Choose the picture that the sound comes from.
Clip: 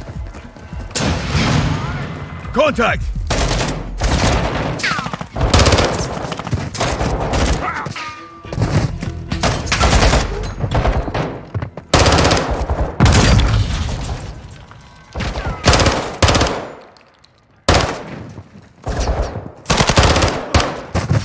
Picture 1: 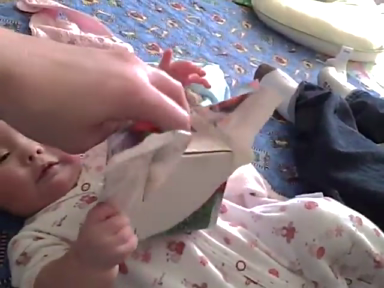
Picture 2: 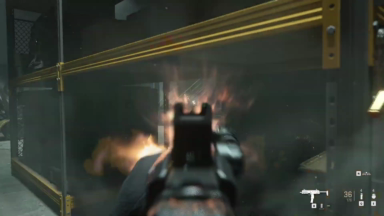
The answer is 2